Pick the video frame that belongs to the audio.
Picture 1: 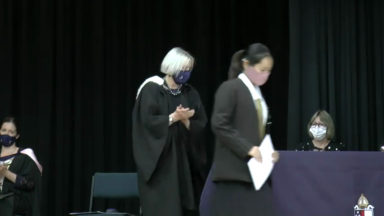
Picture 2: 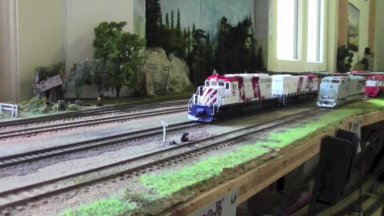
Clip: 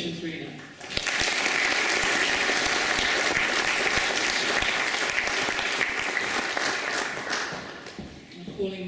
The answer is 1